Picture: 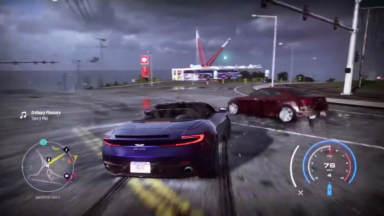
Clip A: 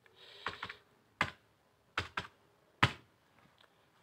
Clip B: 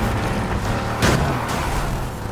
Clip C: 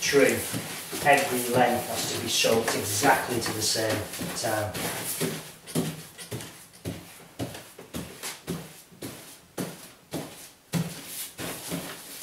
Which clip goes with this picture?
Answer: B